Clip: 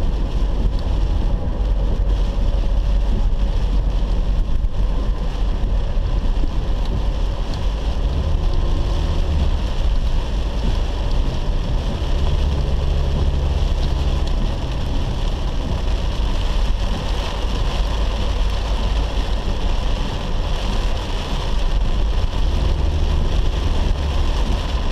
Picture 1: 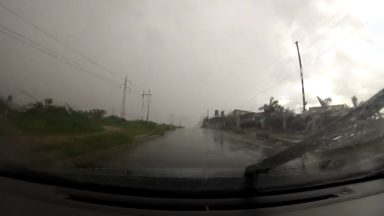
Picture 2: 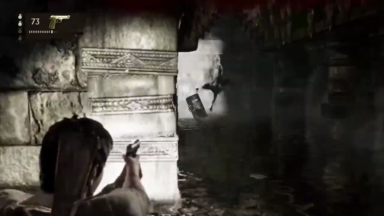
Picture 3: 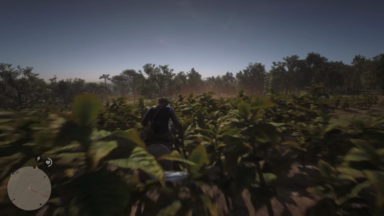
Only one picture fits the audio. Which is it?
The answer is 1